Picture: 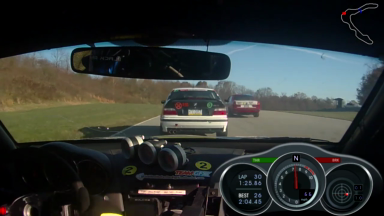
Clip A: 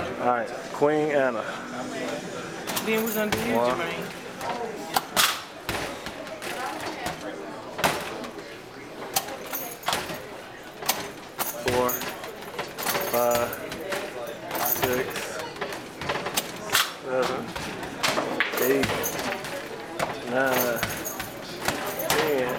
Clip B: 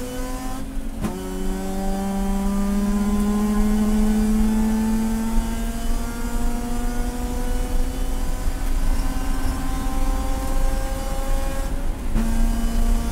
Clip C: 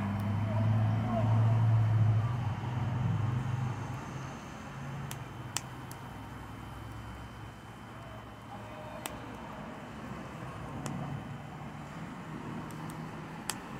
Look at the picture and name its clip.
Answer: B